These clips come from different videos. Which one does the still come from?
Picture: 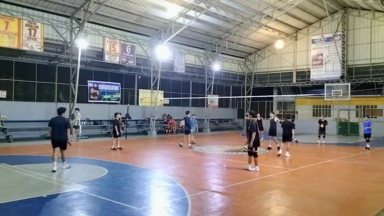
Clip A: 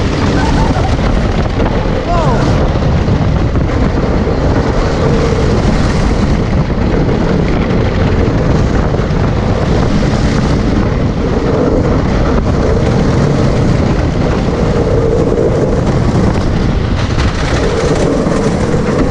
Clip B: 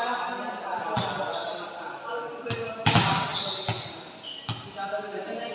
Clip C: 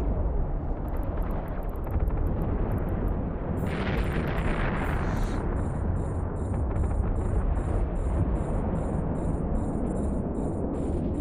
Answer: B